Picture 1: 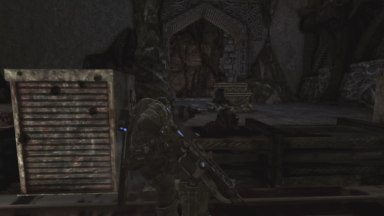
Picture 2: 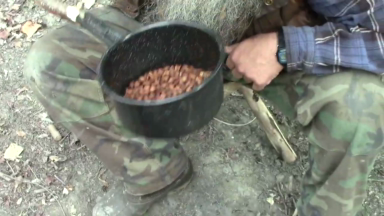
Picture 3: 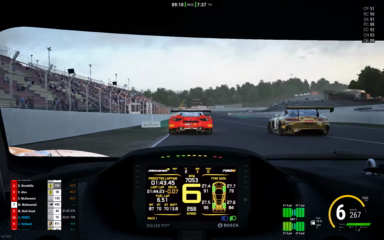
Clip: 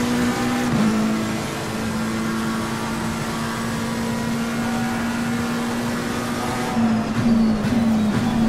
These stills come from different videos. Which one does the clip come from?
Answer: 3